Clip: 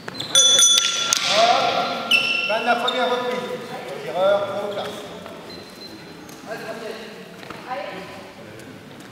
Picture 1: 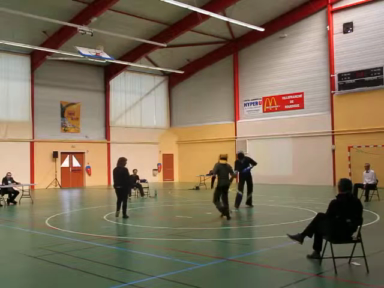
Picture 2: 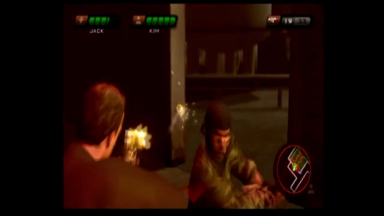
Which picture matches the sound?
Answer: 1